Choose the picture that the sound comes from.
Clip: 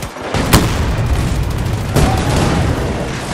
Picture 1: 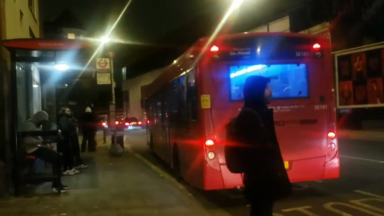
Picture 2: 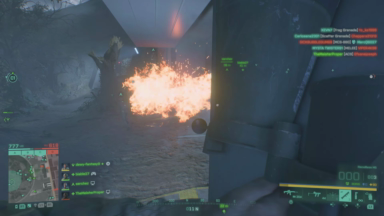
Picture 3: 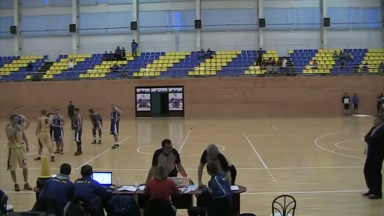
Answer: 2